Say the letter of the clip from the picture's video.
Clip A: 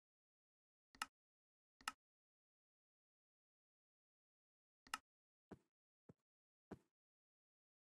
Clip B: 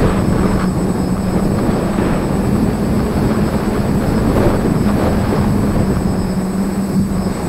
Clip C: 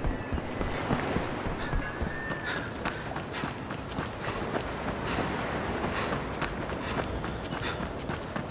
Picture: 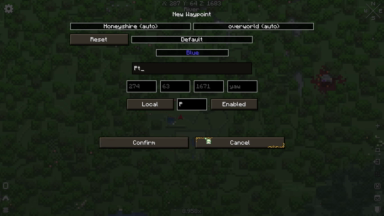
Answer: A